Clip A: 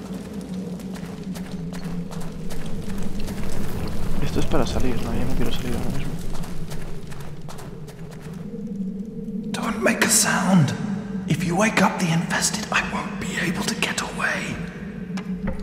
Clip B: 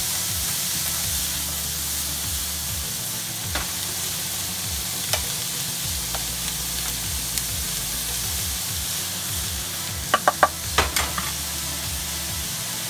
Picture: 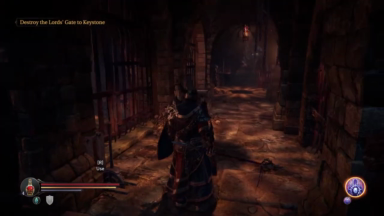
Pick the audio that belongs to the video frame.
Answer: A